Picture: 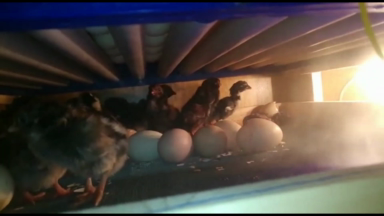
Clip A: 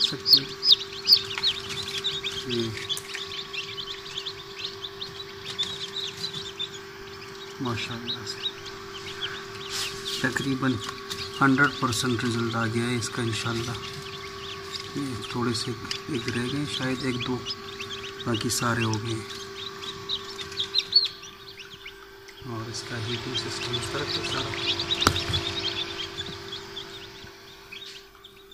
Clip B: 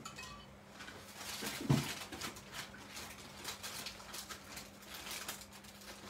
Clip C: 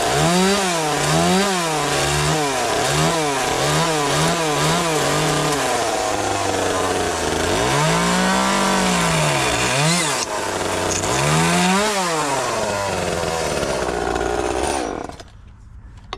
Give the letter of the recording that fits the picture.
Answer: A